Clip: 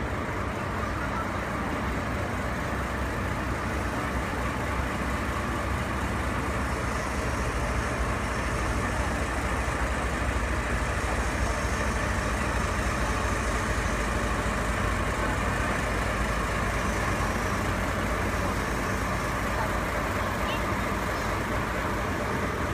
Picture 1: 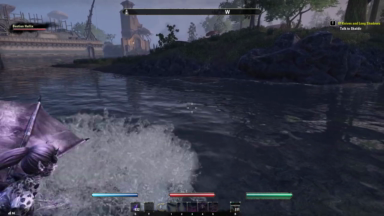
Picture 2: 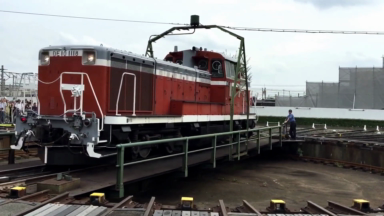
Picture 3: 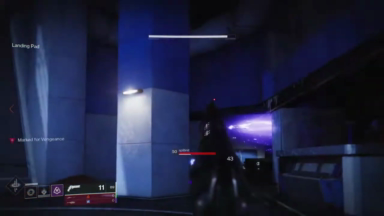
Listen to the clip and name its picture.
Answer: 2